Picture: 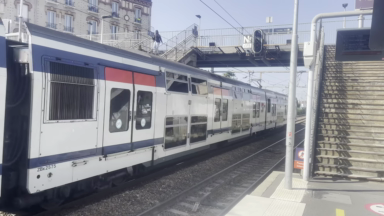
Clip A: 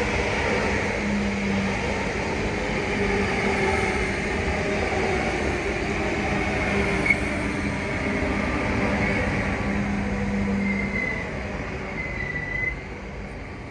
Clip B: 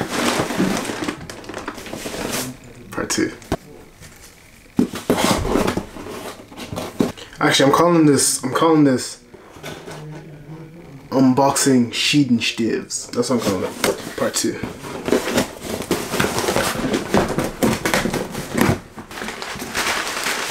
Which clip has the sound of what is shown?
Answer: A